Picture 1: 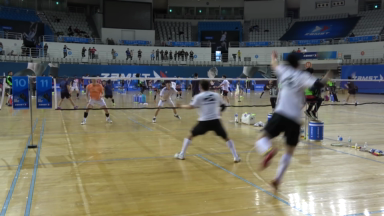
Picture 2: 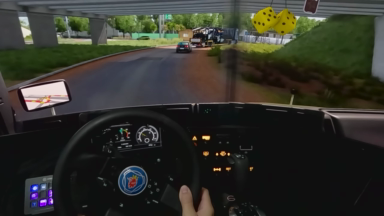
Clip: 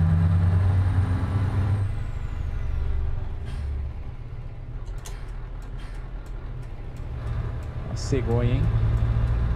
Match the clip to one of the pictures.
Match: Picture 2